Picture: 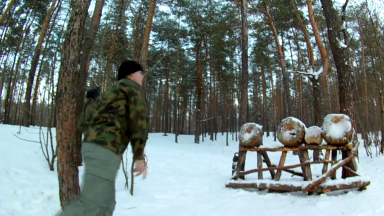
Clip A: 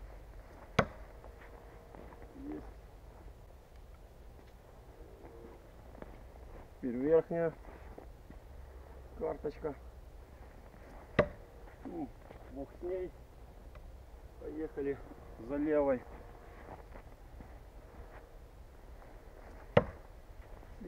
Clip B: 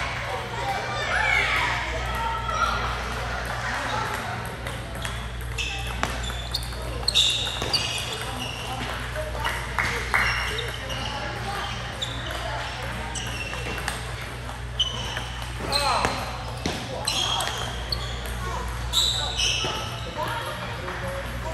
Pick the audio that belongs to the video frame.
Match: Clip A